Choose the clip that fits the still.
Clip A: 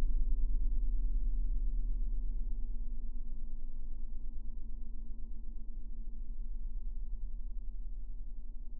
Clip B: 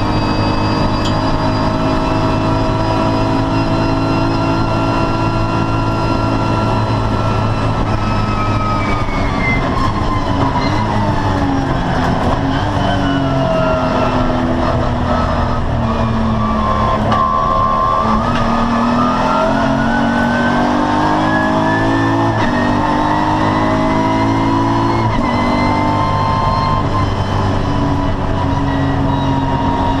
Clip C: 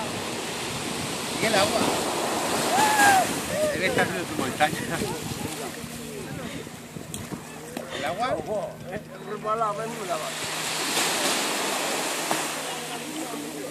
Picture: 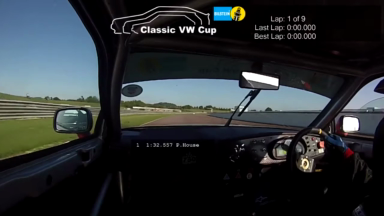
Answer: B